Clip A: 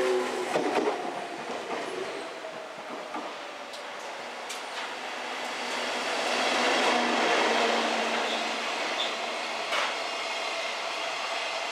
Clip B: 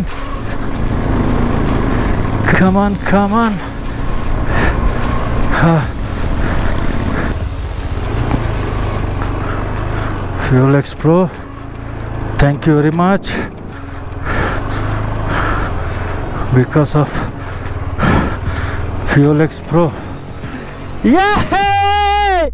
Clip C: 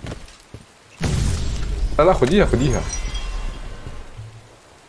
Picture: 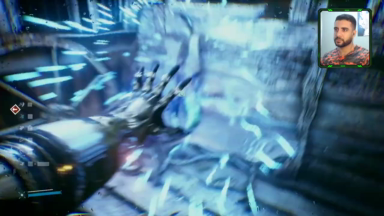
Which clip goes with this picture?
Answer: C